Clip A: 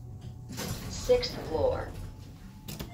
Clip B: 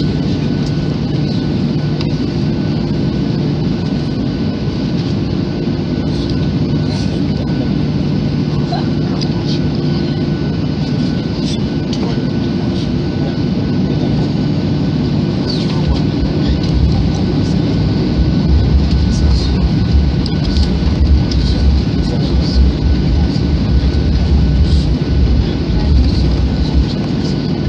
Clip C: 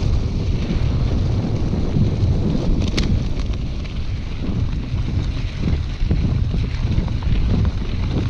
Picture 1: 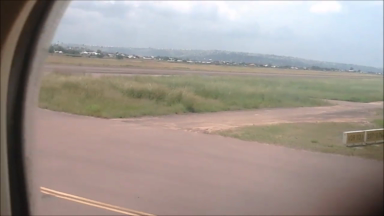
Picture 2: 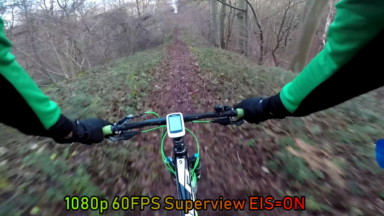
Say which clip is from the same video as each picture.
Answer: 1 B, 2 C